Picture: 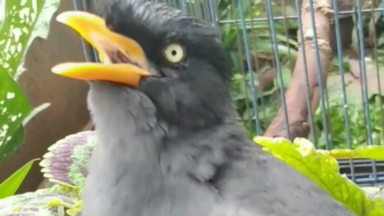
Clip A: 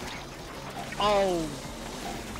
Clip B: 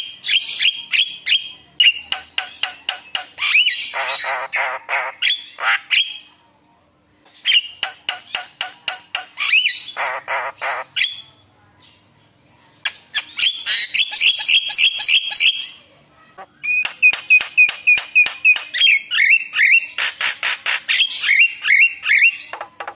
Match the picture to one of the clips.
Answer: B